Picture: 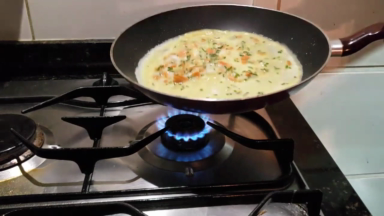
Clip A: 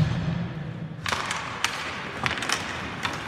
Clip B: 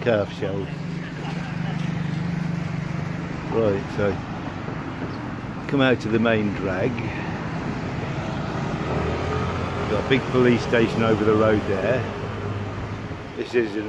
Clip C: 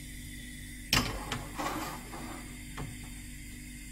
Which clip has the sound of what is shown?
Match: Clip C